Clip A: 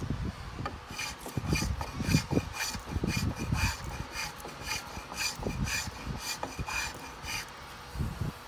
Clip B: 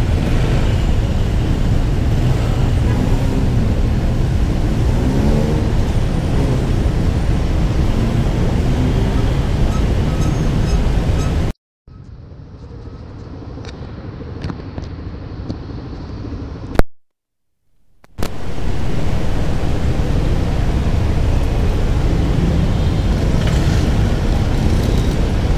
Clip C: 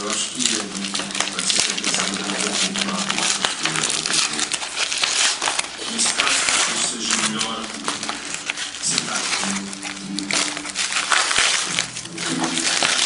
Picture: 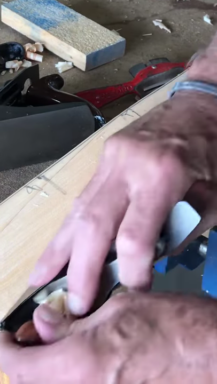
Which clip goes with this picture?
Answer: A